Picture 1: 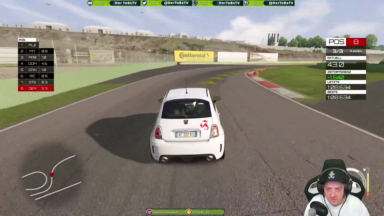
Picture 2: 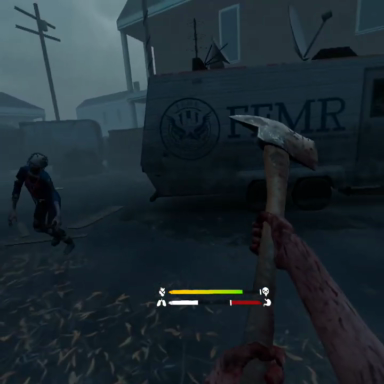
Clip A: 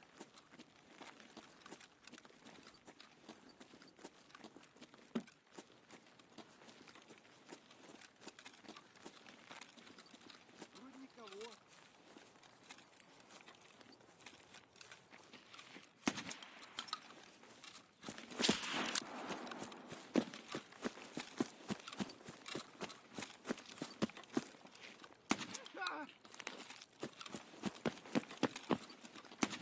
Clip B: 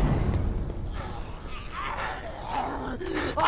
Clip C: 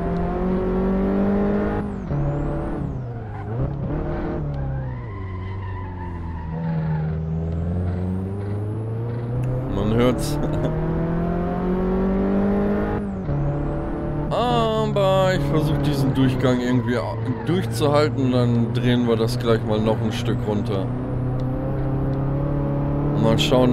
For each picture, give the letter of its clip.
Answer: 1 C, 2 B